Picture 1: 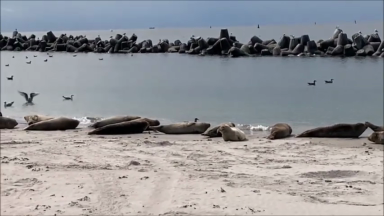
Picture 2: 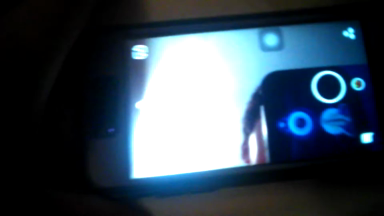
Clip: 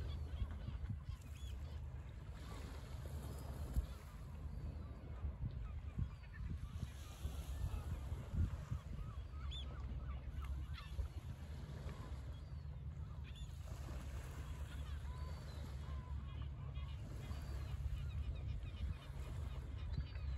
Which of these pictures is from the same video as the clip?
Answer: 1